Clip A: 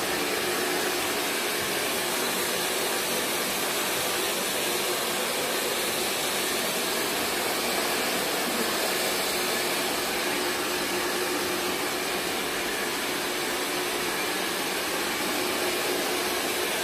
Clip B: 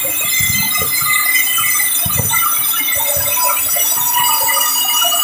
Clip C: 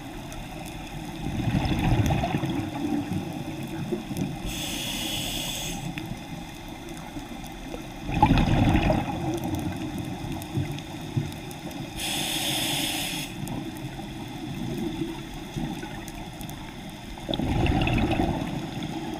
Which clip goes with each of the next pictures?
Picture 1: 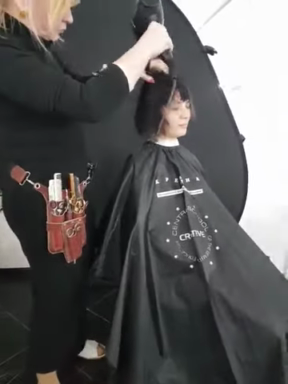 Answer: A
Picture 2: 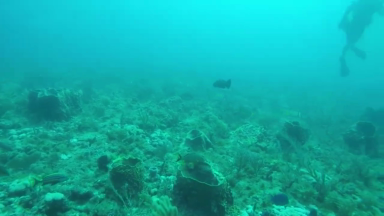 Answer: C